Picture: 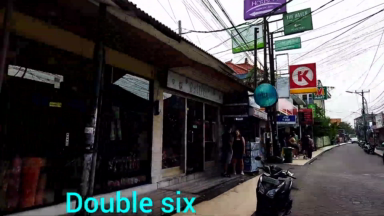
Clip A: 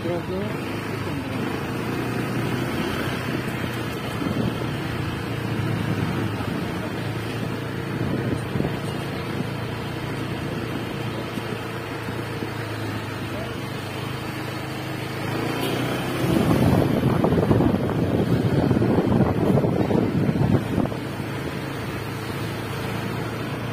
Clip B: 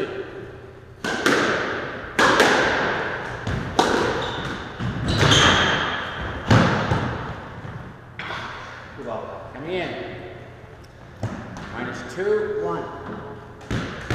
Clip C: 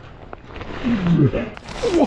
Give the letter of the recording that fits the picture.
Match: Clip A